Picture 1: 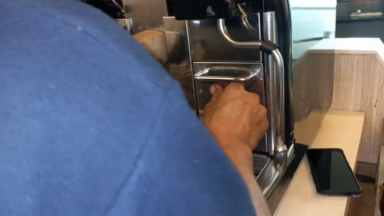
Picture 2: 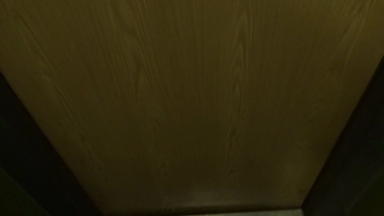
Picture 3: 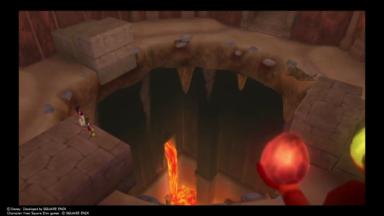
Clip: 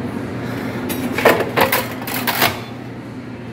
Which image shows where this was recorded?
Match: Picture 1